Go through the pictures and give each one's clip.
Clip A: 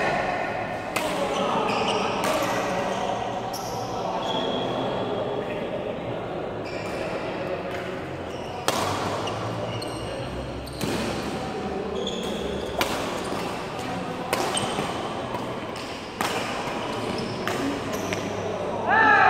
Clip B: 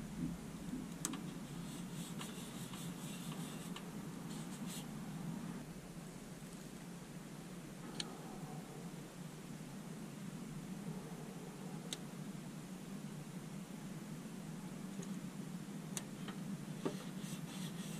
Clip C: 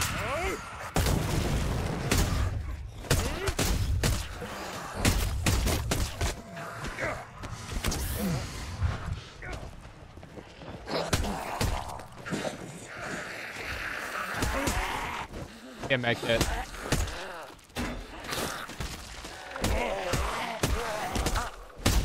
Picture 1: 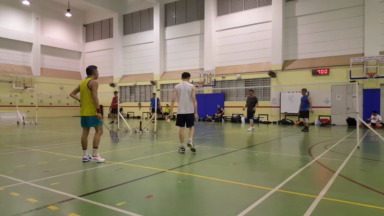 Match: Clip A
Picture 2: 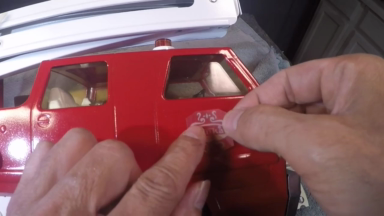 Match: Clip B